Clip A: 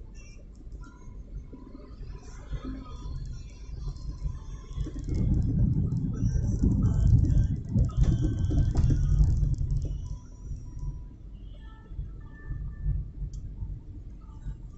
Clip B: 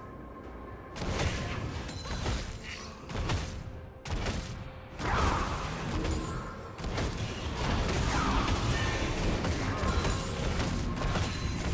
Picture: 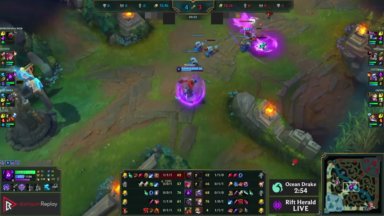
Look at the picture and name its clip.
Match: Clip B